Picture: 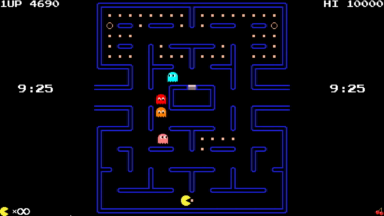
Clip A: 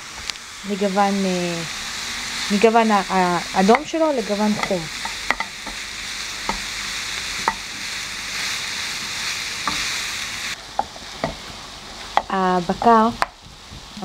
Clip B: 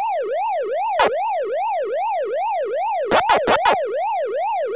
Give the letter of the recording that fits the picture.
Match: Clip B